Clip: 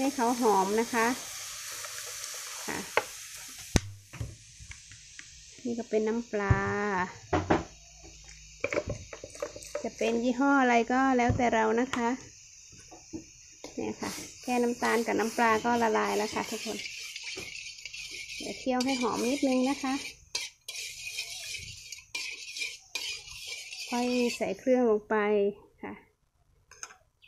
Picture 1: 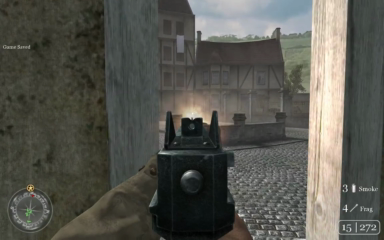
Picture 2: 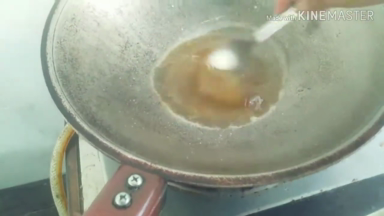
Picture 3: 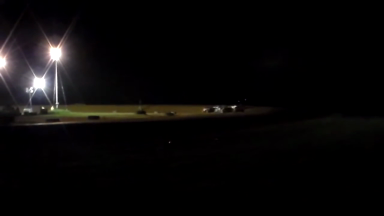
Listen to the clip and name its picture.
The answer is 2